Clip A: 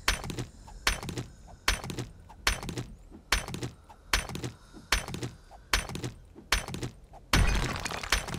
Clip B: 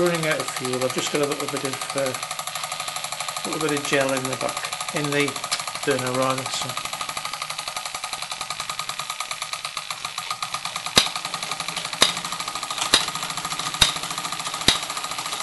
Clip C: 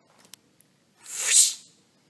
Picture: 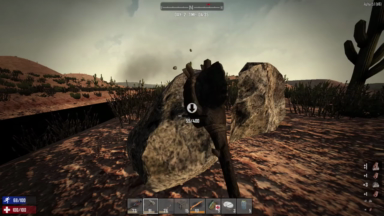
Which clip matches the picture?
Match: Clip A